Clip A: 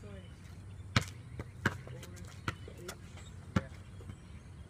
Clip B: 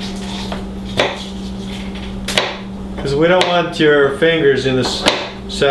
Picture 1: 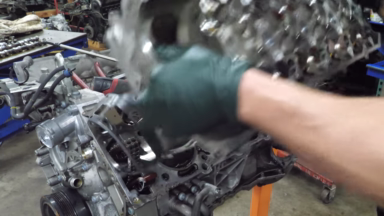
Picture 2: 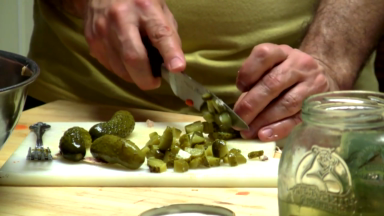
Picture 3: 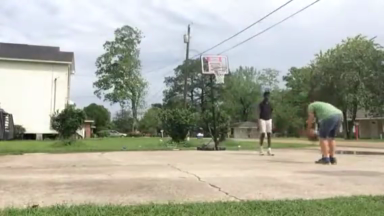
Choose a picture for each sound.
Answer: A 3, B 2